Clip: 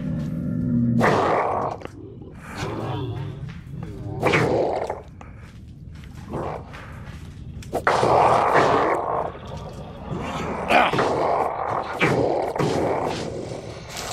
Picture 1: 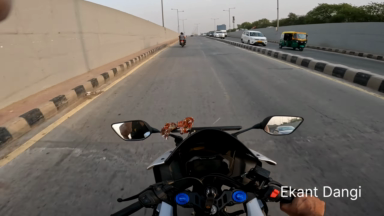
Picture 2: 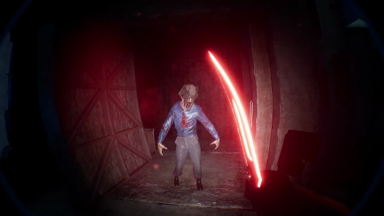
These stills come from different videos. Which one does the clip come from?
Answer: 2